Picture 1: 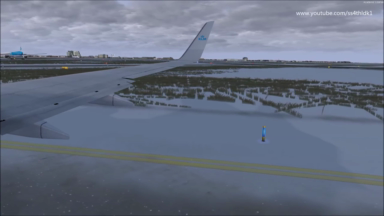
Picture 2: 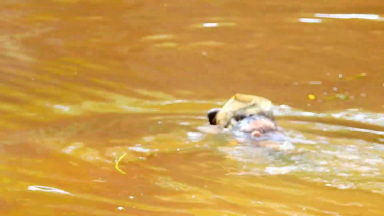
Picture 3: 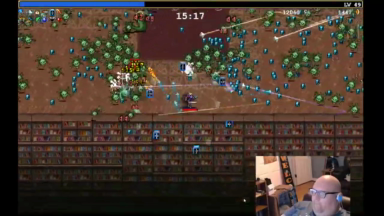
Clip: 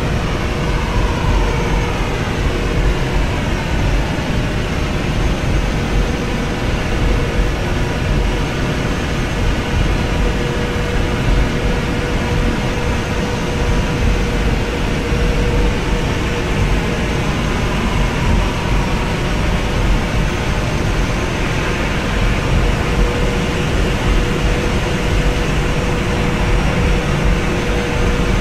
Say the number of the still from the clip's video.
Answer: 1